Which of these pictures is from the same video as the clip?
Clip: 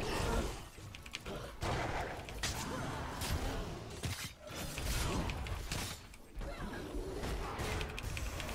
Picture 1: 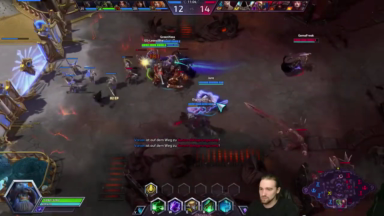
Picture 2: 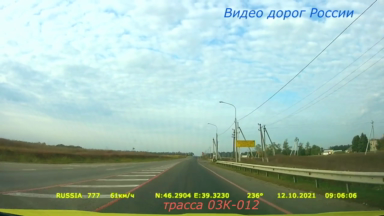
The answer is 1